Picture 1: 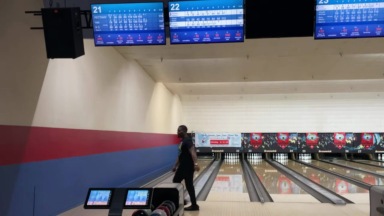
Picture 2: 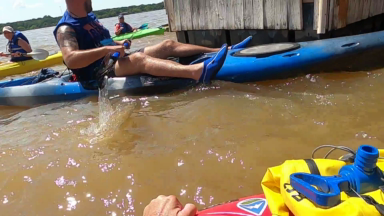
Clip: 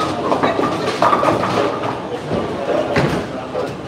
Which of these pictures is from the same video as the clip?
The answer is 1